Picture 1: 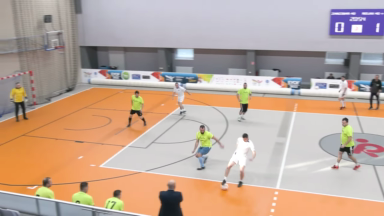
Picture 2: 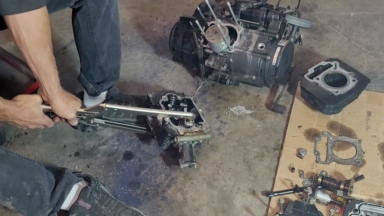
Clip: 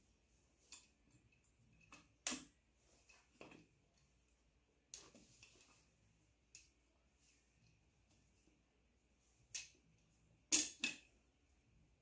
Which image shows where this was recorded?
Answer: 2